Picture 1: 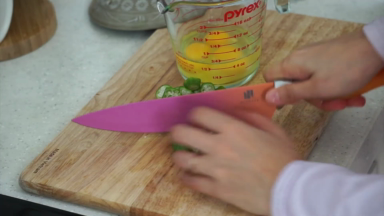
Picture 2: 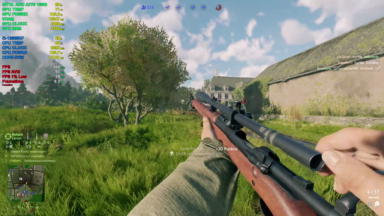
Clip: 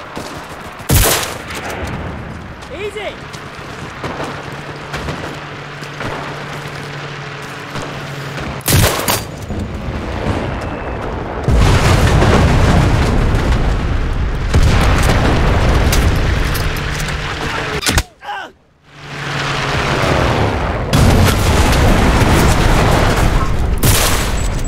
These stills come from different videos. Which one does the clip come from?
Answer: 2